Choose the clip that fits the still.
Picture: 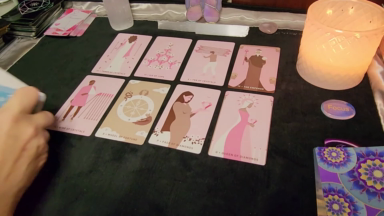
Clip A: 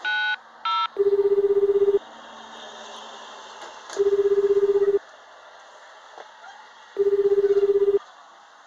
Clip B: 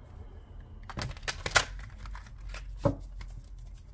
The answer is B